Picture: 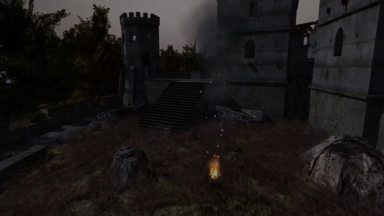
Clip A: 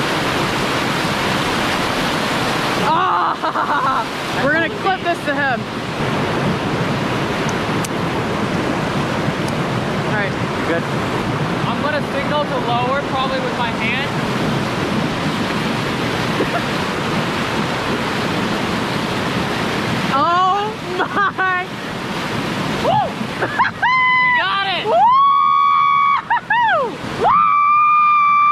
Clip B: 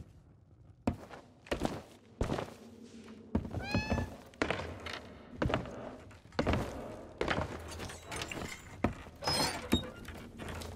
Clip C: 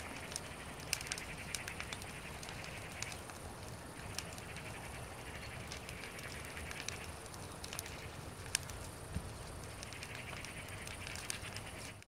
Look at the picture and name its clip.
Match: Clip C